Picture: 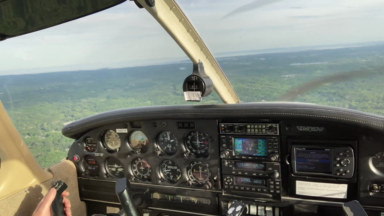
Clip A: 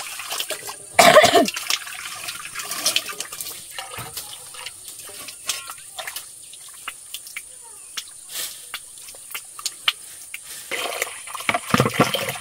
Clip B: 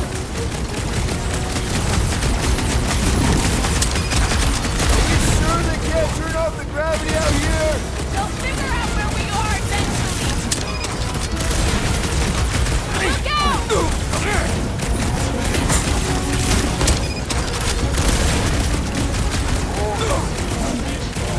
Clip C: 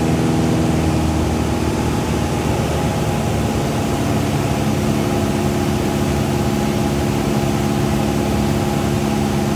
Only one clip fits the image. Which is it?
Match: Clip C